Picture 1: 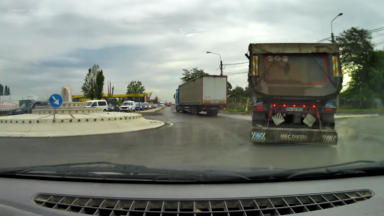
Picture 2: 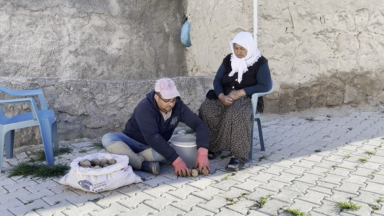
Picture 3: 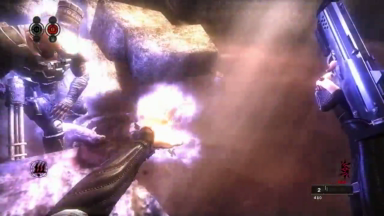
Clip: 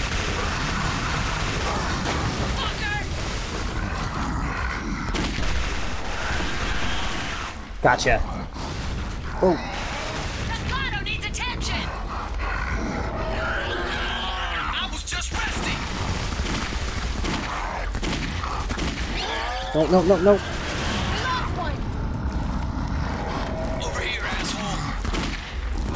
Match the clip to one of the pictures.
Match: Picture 3